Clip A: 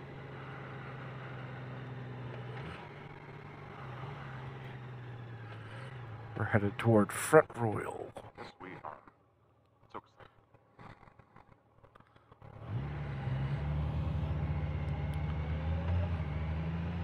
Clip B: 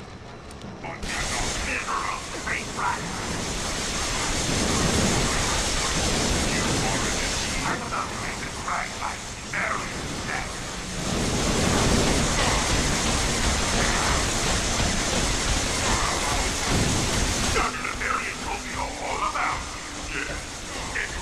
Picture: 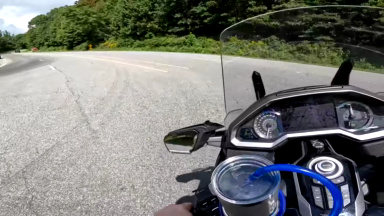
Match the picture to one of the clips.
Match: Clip A